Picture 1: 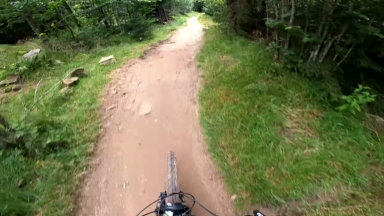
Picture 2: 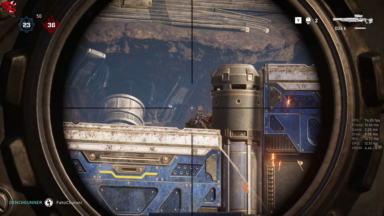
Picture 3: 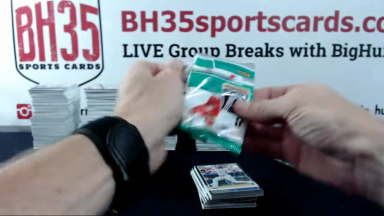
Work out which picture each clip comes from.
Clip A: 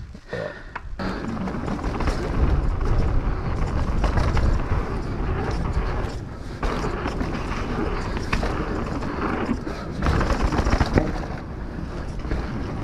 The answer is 1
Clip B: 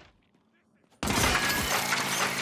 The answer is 2